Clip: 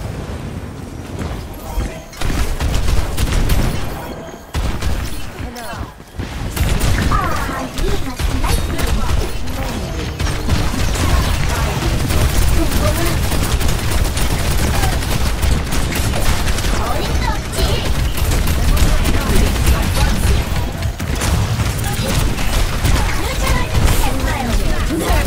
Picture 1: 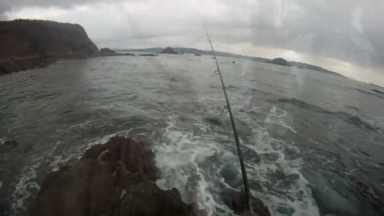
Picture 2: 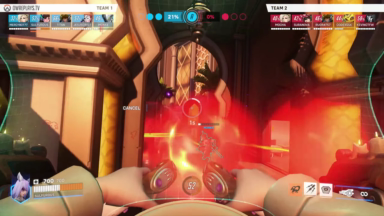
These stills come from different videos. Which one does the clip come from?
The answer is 2